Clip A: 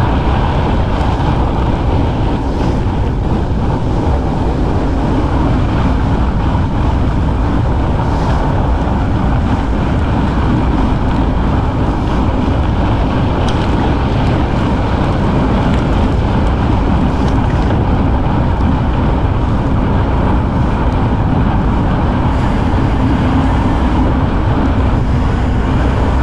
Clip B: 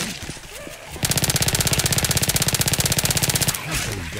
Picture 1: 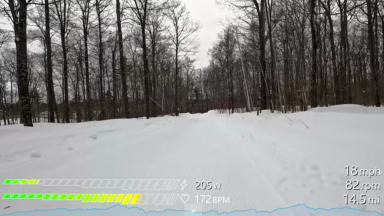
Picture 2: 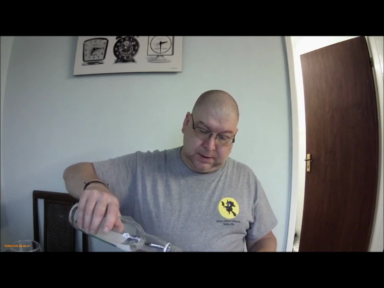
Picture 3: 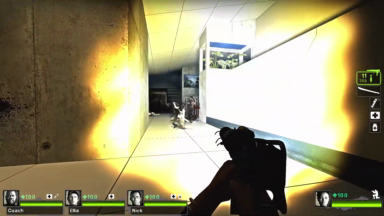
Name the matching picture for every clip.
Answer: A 1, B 3